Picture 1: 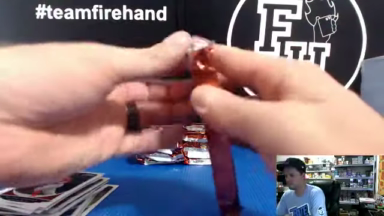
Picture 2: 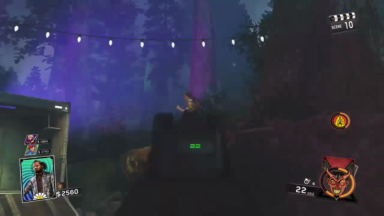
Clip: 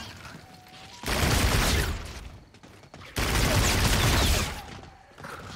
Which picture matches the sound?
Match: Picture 2